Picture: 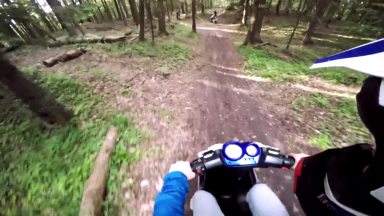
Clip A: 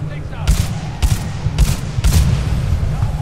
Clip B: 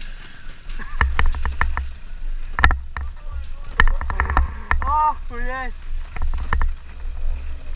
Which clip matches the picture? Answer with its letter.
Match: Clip B